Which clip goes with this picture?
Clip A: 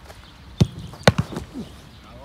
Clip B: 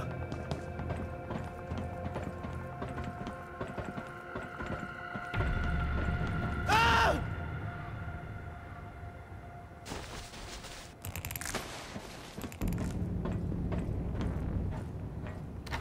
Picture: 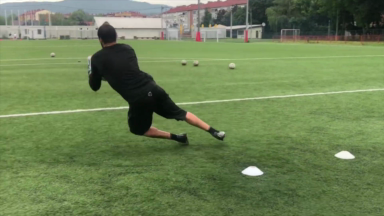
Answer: A